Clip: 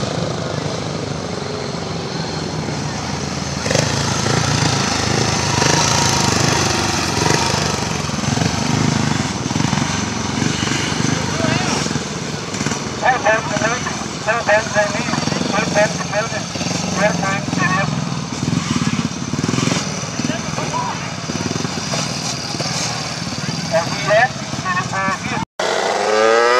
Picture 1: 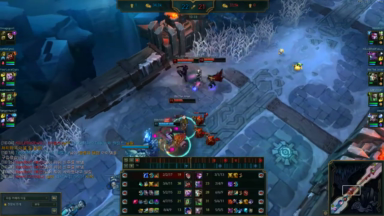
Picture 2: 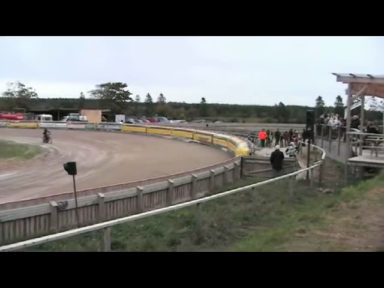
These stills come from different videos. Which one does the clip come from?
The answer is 2